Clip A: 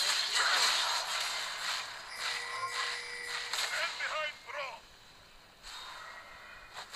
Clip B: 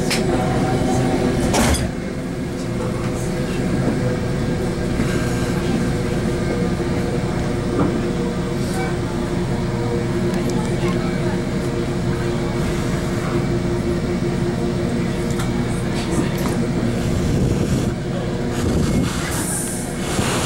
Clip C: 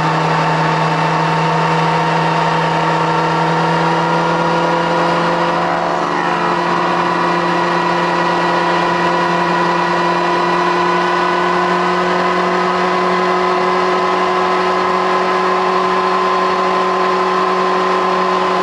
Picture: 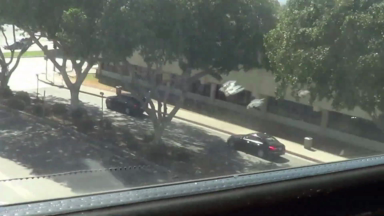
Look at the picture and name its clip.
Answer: B